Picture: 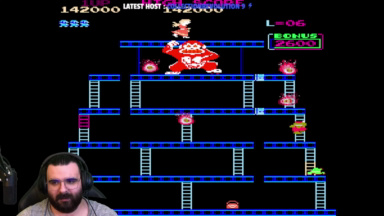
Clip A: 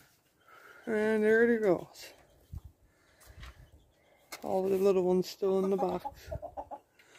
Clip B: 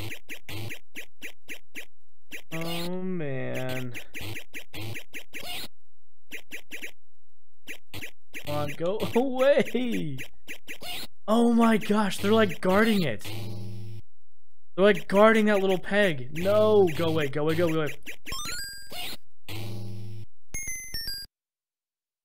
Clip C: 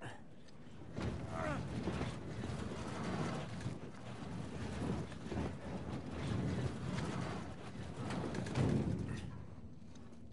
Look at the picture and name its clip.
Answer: B